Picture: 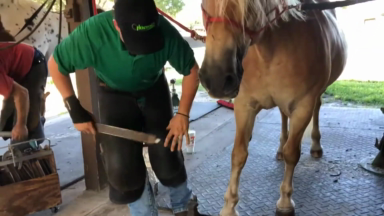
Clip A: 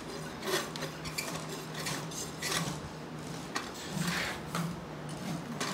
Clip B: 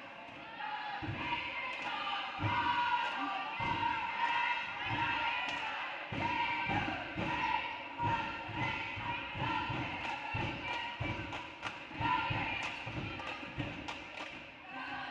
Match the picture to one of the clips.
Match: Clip A